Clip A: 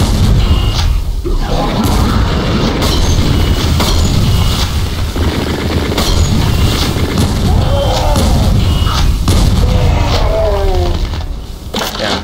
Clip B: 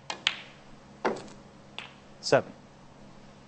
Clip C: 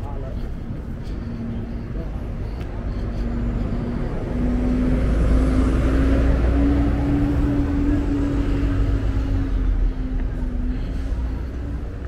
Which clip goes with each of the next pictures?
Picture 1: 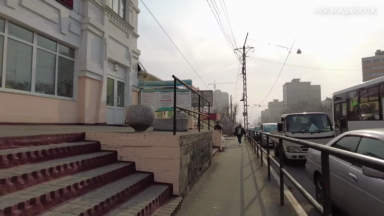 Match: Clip C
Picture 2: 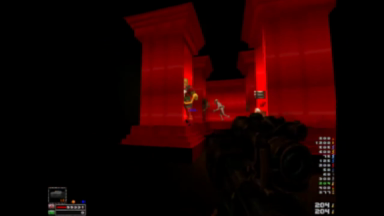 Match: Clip A